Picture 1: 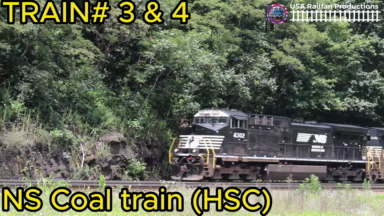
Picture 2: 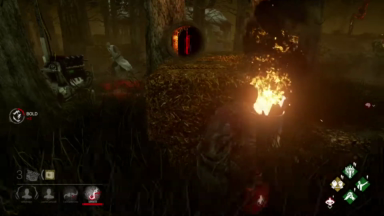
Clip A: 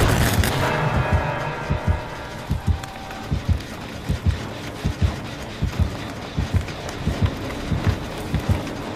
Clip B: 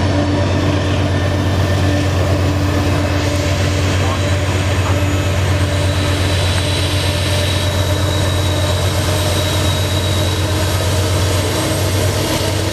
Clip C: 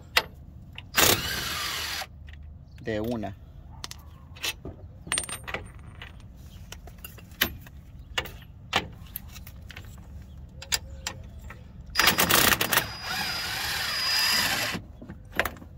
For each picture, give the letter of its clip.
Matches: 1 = B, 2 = A